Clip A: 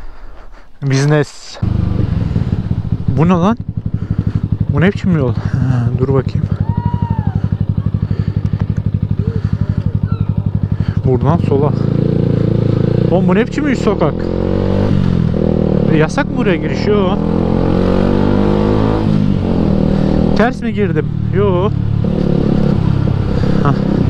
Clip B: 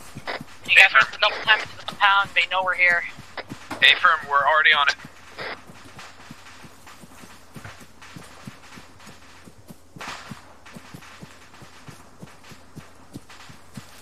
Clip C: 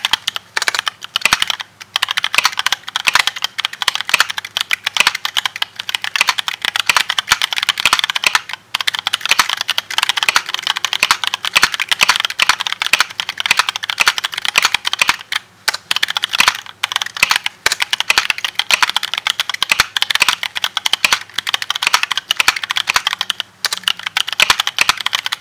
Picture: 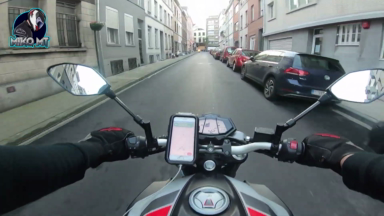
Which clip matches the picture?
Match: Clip A